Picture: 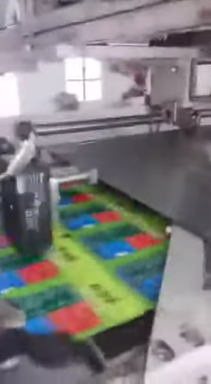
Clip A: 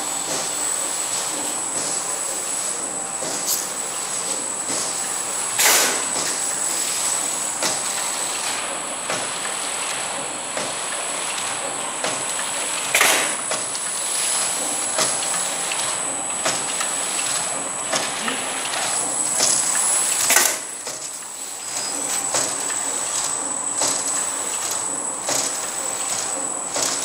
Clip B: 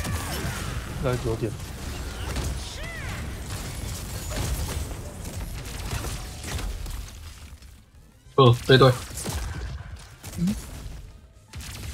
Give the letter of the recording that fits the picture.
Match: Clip A